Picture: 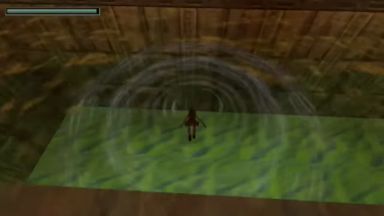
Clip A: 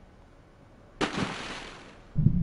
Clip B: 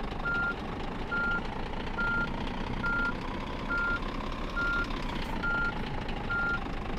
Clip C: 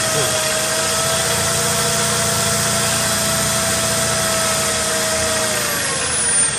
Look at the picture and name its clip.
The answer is A